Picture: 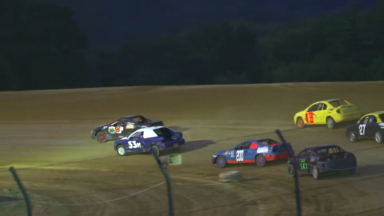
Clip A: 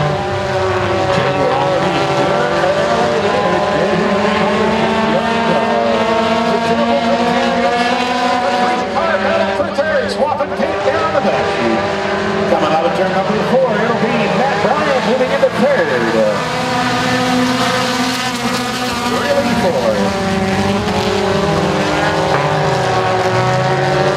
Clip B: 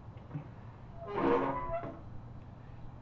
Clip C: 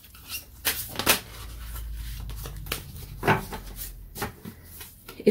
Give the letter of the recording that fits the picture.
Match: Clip A